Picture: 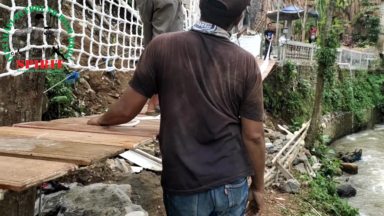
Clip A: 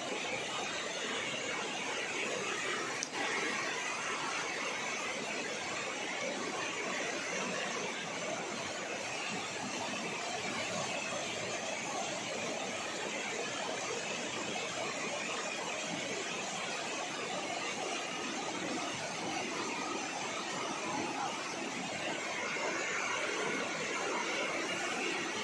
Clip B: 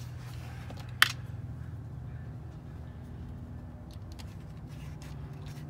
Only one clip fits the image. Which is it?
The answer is A